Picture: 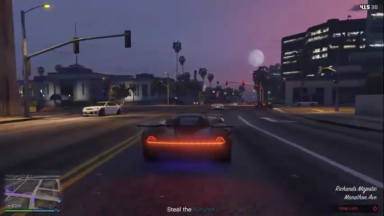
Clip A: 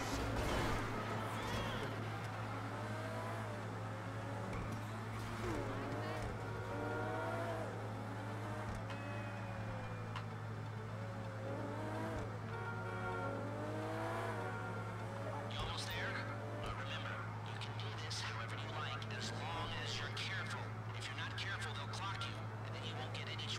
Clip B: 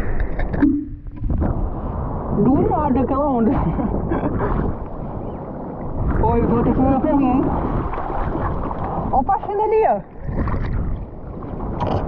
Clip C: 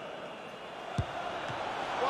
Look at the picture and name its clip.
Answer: A